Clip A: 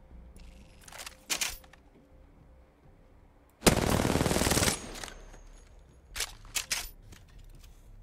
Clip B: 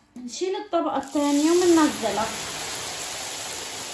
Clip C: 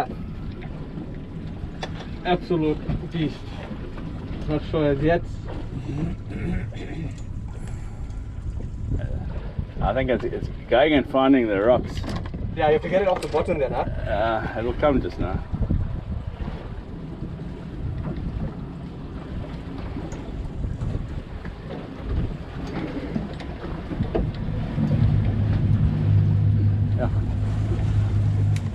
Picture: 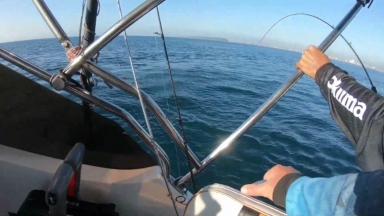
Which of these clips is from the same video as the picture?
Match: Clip C